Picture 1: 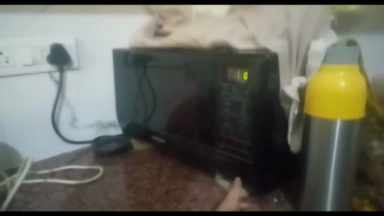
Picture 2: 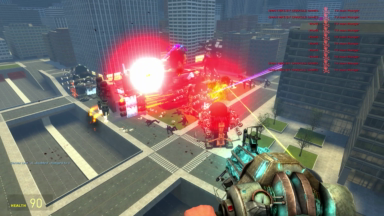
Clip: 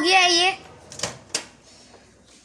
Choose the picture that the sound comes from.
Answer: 1